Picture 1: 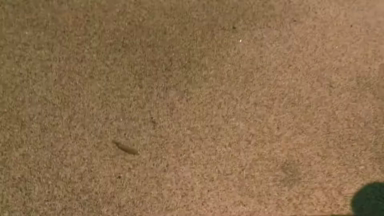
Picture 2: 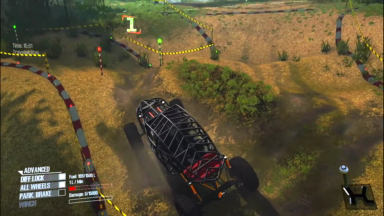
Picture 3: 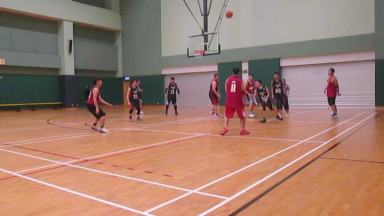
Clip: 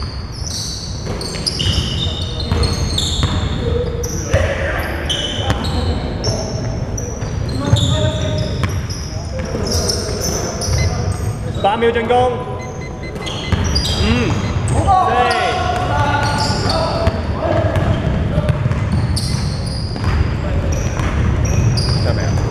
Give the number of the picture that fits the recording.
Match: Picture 3